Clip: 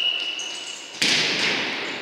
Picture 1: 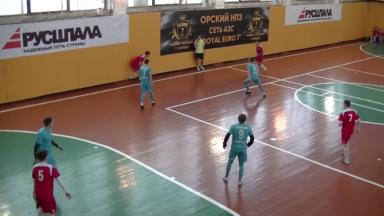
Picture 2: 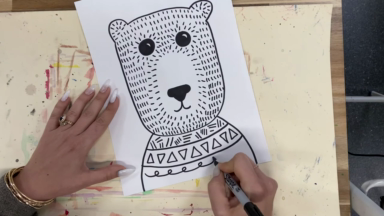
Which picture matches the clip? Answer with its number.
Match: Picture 1